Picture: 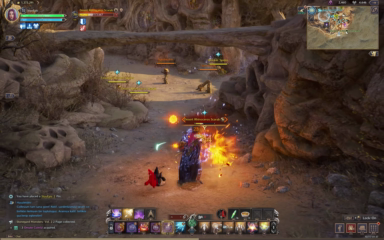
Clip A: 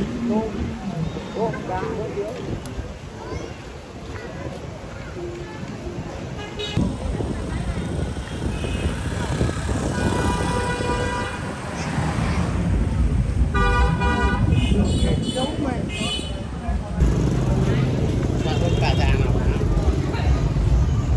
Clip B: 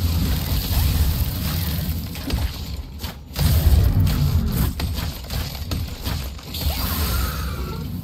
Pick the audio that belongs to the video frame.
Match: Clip B